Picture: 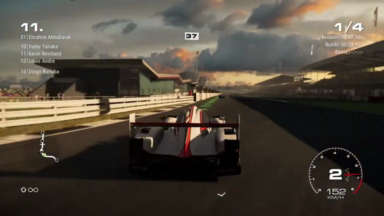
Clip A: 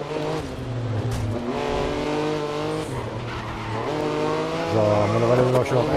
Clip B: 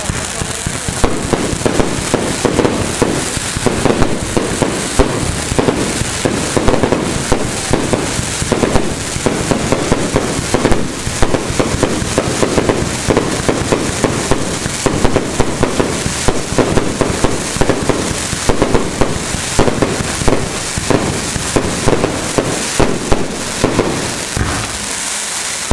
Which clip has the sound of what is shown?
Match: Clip A